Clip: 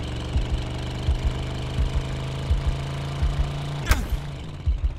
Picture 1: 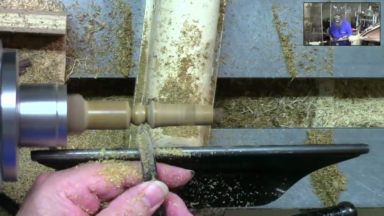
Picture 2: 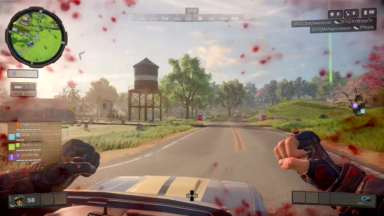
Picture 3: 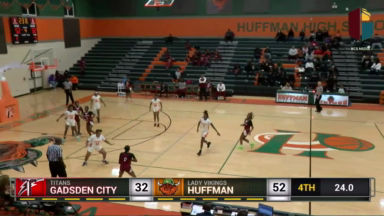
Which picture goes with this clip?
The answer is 2